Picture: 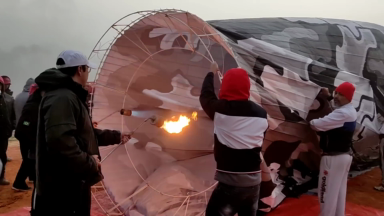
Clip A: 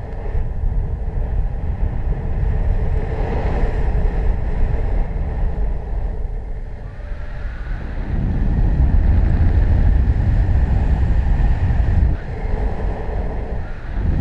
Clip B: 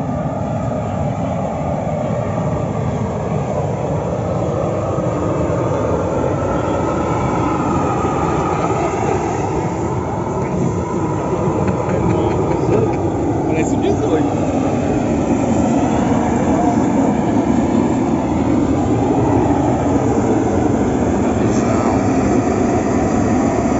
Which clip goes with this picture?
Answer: B